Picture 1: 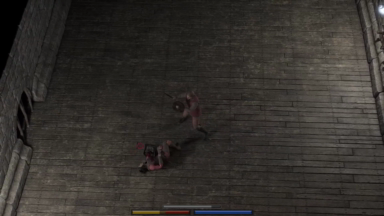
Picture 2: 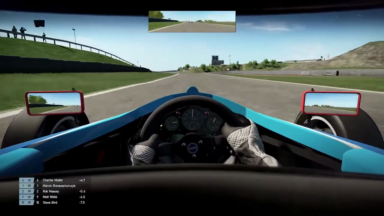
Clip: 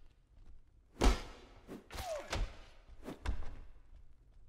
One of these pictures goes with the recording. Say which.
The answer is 1